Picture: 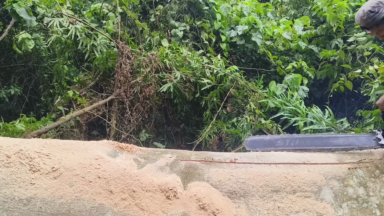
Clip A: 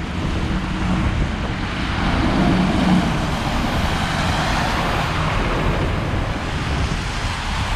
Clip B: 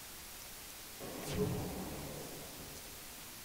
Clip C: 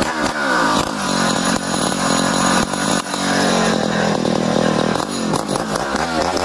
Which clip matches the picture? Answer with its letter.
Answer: C